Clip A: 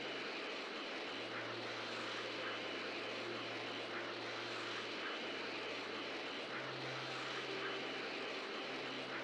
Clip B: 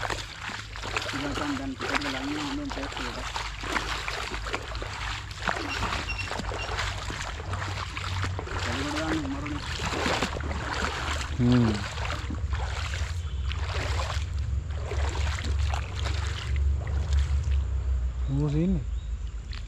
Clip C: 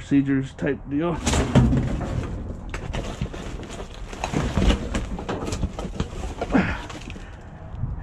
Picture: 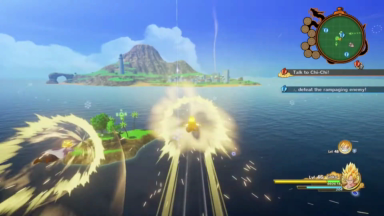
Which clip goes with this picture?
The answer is A